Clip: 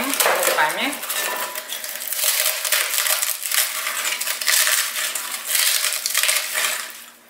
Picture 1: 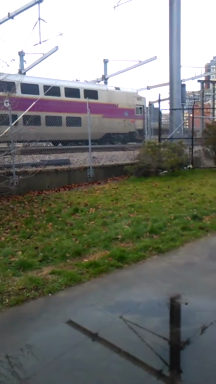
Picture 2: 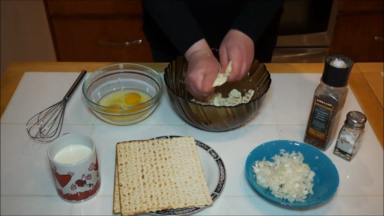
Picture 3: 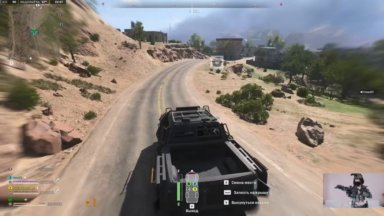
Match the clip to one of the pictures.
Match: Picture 2